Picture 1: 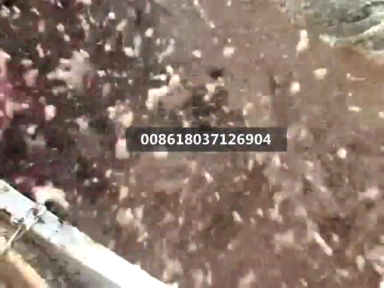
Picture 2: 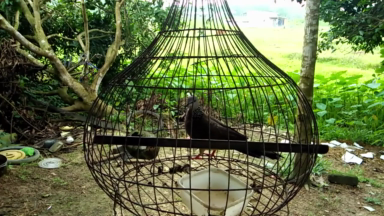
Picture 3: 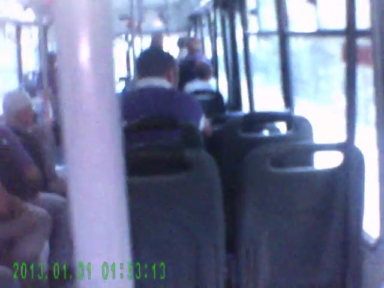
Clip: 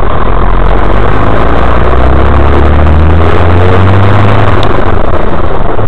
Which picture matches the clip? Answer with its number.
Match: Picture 3